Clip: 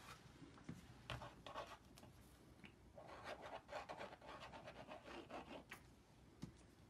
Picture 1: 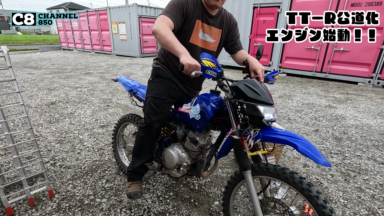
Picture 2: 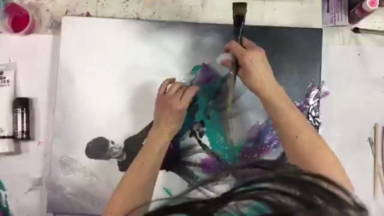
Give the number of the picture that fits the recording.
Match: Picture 2